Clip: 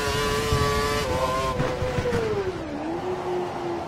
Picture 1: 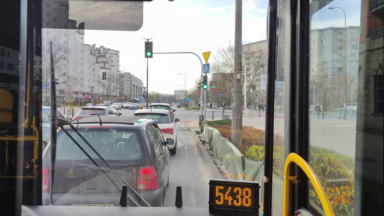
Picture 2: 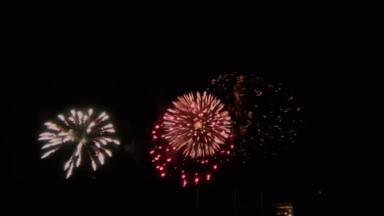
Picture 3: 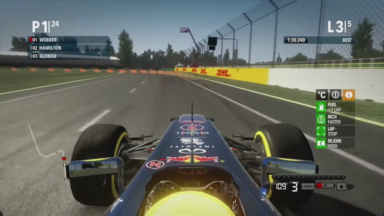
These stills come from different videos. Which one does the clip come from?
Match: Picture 3